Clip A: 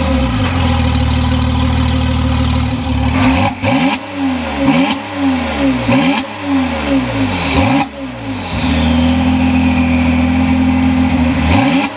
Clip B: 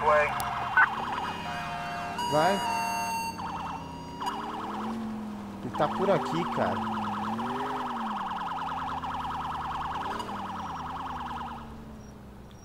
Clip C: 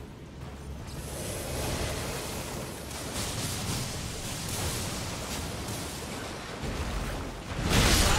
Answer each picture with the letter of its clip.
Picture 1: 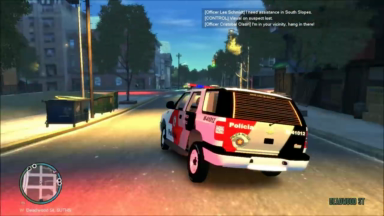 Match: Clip B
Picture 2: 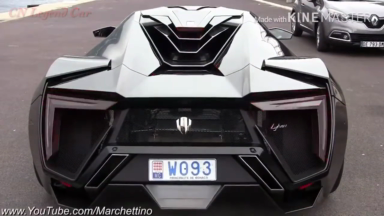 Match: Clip A